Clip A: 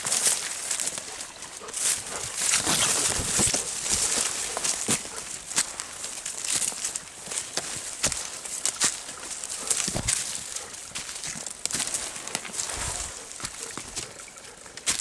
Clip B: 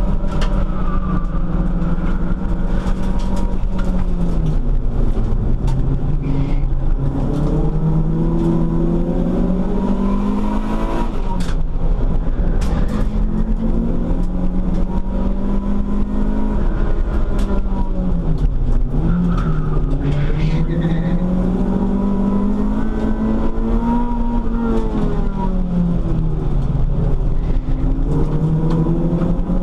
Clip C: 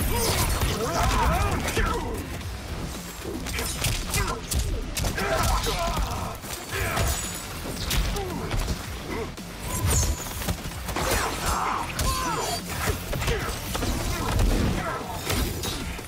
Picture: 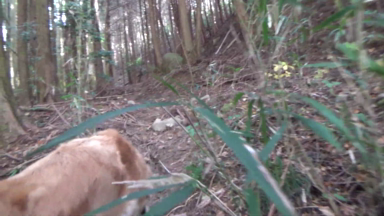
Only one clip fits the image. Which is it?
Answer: A